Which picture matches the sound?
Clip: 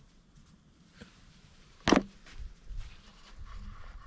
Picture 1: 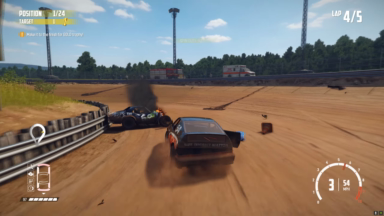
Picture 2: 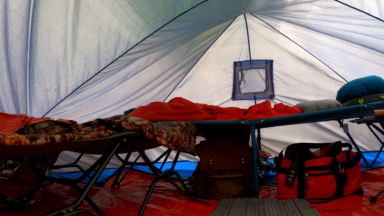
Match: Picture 2